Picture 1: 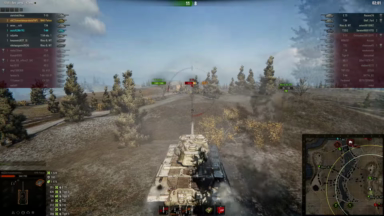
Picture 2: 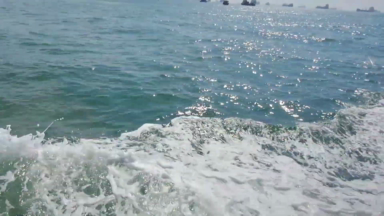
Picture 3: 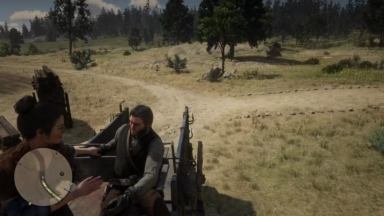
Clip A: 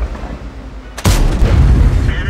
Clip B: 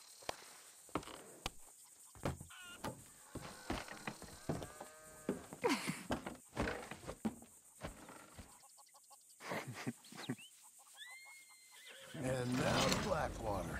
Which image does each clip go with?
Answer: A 1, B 3